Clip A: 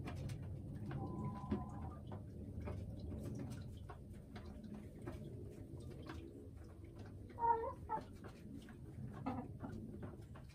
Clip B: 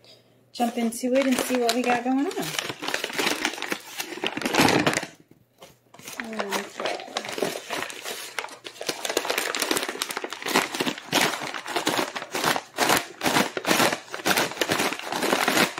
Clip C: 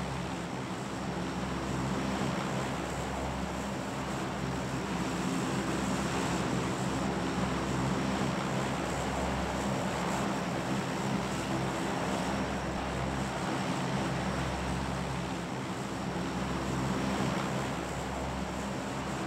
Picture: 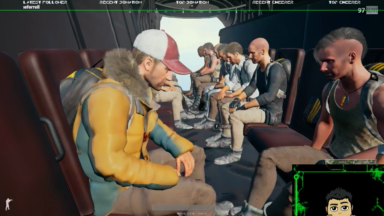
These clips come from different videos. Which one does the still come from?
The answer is C